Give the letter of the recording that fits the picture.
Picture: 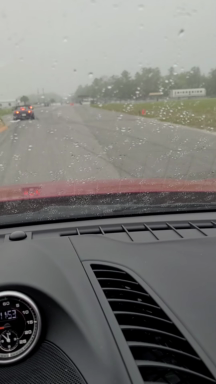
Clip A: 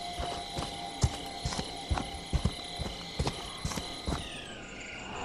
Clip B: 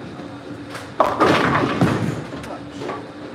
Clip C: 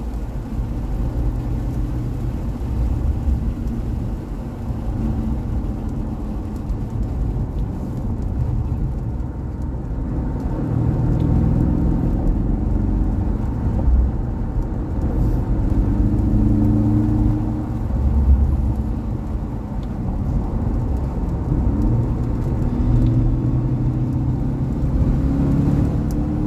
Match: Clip C